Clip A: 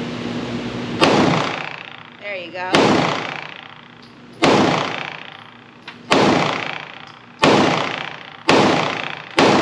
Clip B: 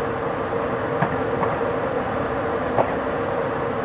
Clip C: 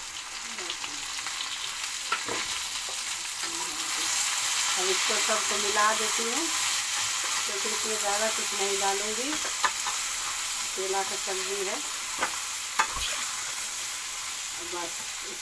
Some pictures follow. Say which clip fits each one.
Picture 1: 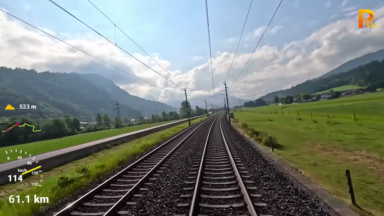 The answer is B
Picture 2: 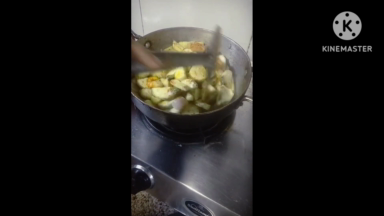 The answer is C